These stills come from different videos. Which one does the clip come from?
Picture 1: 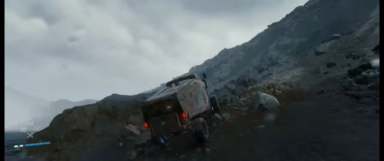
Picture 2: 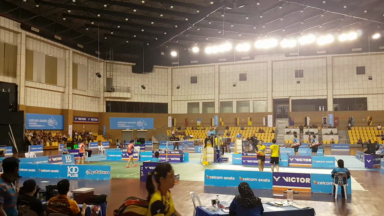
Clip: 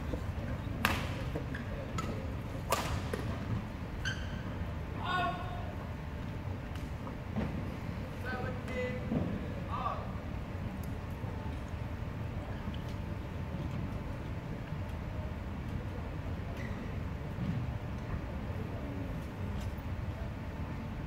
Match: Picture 2